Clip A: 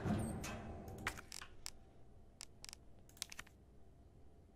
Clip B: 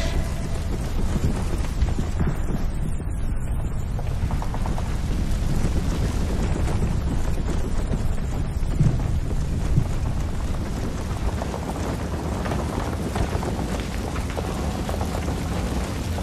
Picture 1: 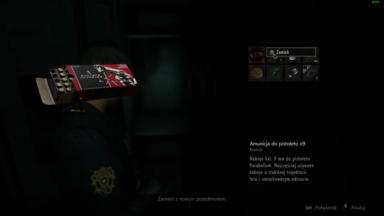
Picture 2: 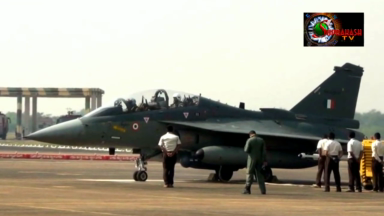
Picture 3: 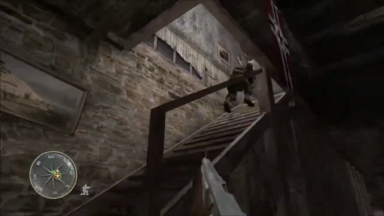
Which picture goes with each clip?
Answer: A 1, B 3